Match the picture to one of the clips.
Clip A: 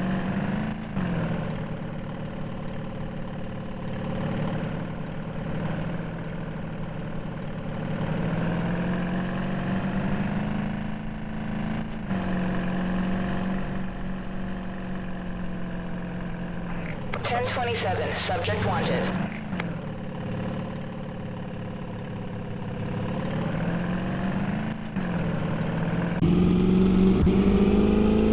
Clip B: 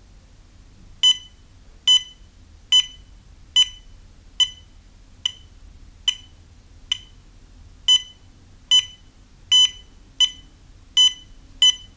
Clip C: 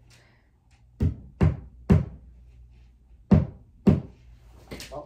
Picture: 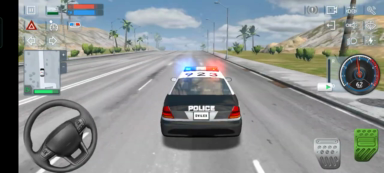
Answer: A